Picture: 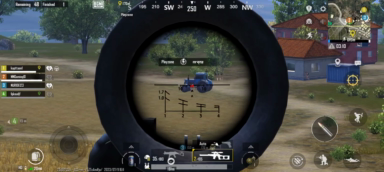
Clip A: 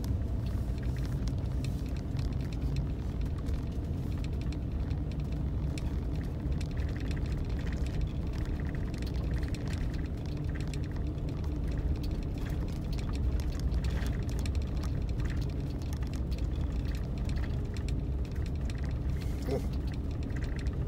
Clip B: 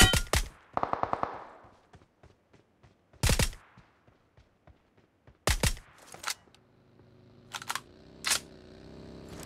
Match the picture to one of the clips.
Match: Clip B